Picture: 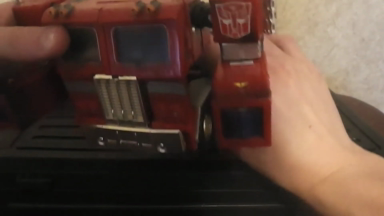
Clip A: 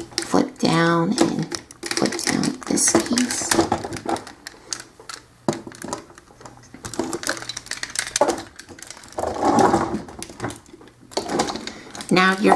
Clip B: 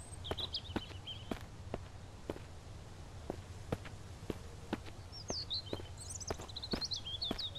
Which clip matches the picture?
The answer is A